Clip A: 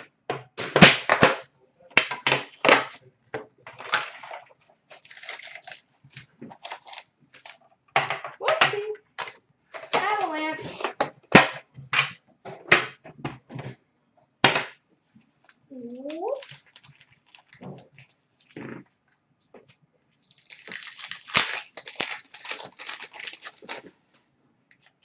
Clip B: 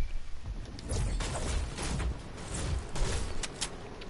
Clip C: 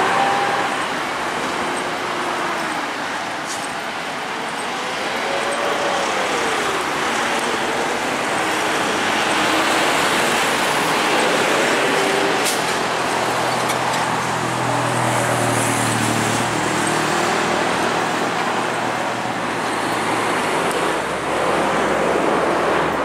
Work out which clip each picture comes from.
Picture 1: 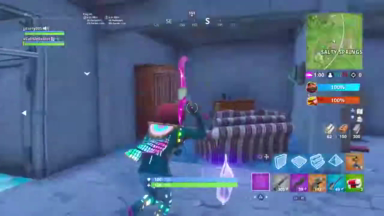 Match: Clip B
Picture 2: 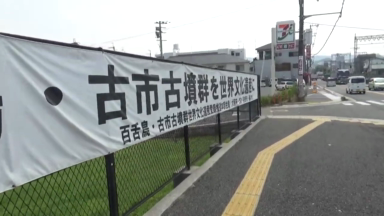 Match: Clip C